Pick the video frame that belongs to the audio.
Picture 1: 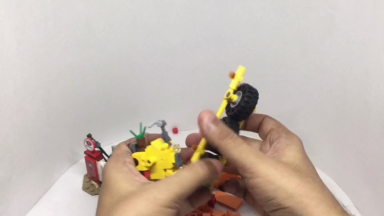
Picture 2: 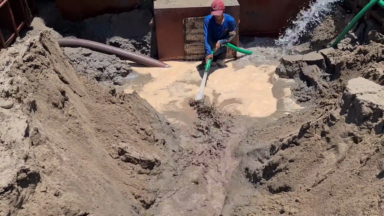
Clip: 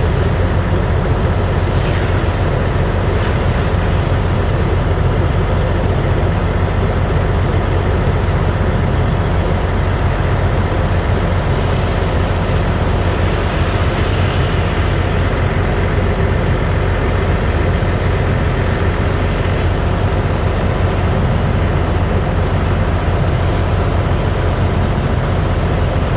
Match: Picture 2